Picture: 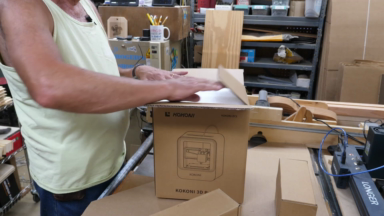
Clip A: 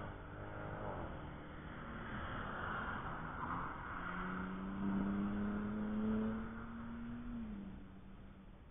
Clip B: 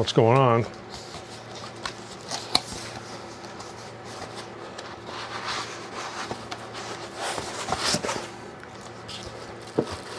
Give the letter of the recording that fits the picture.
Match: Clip B